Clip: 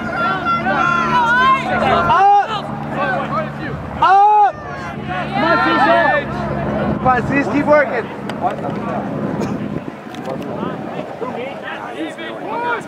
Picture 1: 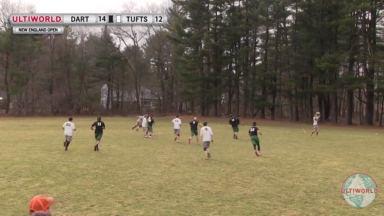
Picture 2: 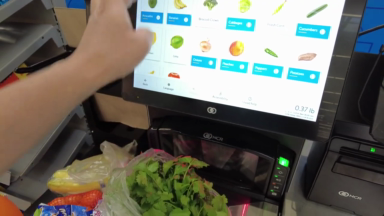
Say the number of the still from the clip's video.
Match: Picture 1